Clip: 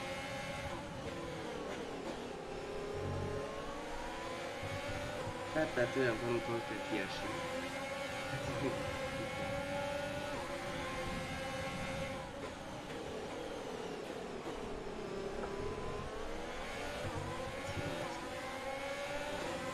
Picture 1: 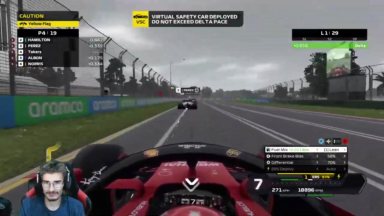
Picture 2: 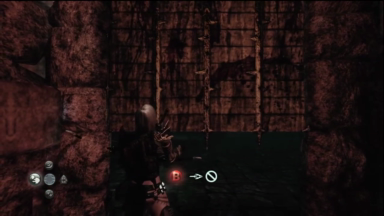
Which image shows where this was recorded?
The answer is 1